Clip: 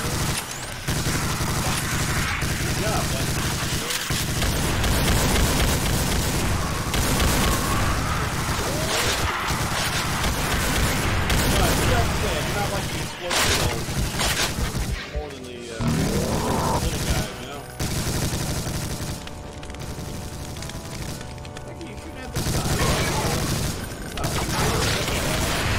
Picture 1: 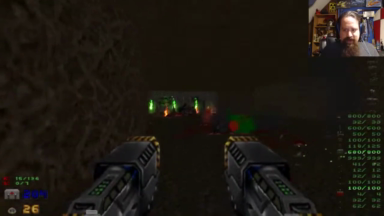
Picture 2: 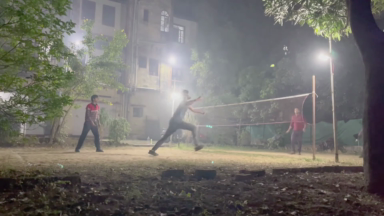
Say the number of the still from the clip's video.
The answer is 1